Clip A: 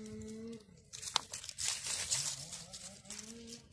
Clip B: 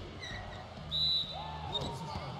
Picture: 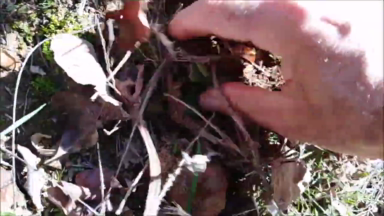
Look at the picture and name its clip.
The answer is A